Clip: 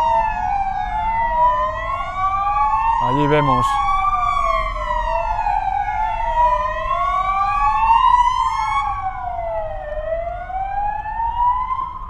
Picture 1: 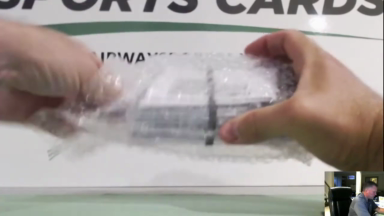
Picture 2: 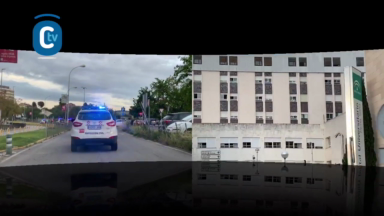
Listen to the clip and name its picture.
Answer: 2